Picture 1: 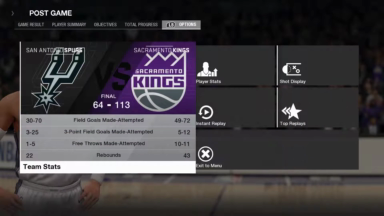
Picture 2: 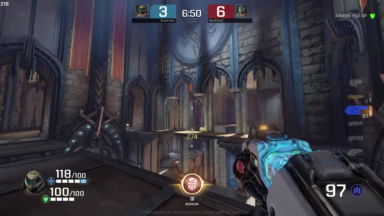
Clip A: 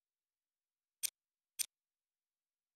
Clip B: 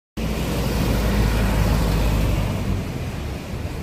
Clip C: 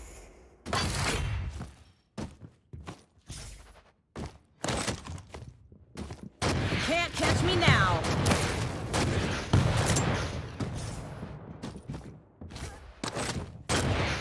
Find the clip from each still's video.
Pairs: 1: A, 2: C